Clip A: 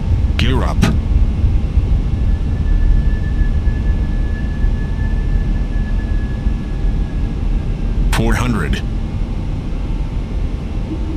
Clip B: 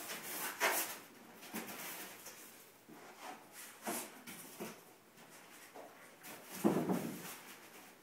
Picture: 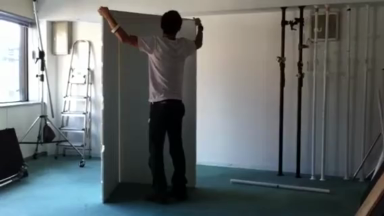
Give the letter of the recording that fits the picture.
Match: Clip B